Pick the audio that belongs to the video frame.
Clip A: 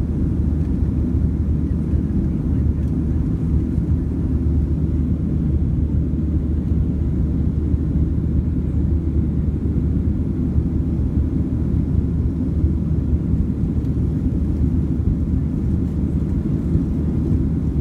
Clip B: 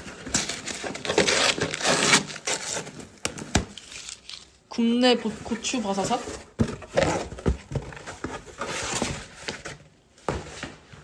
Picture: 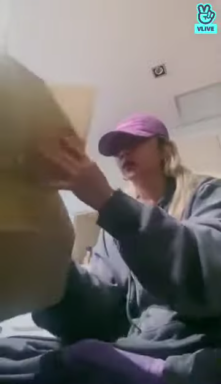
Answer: B